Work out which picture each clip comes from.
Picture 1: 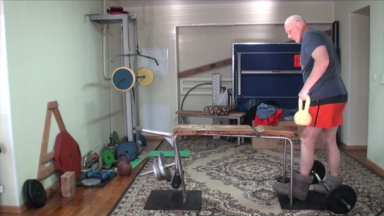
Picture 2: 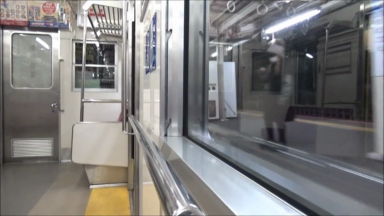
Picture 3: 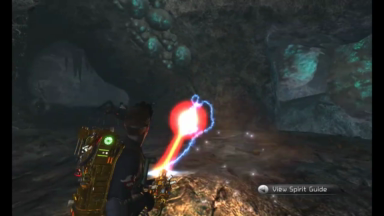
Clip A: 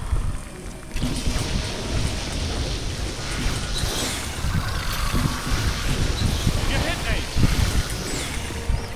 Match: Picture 3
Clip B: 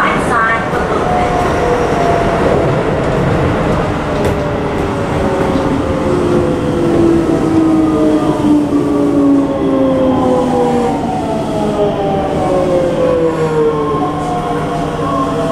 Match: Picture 2